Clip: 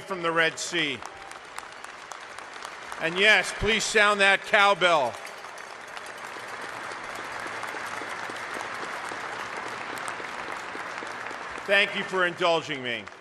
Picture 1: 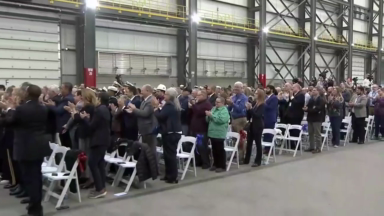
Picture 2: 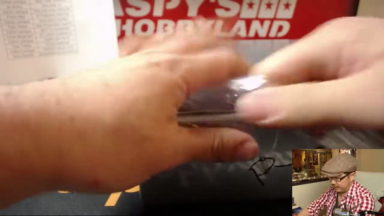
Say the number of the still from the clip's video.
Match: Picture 1